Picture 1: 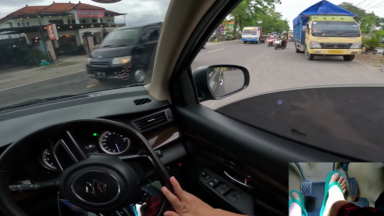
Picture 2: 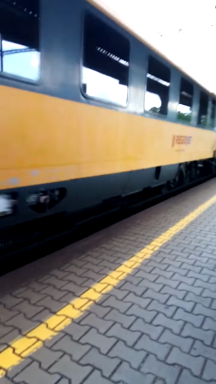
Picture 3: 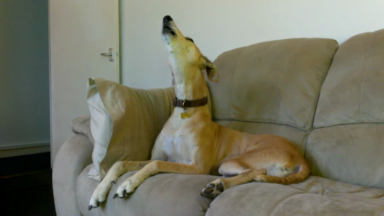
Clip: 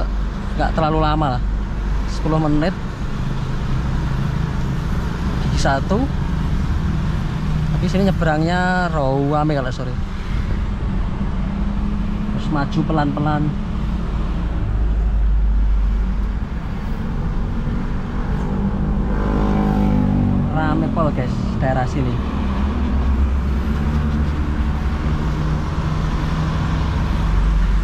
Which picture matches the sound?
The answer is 1